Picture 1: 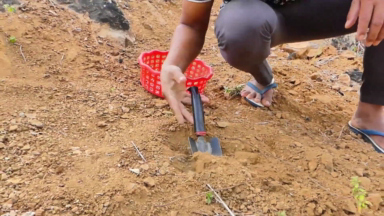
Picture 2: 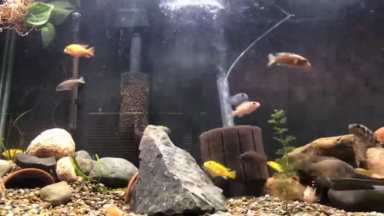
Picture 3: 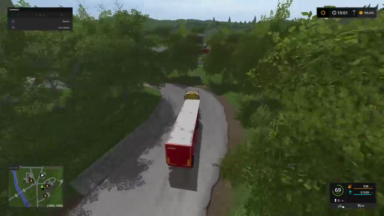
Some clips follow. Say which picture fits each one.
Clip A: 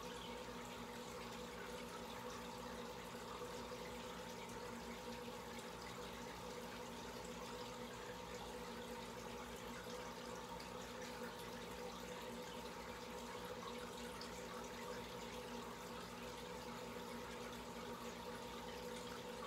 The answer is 2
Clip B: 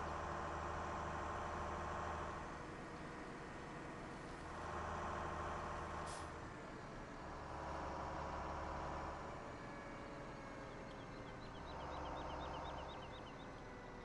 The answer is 3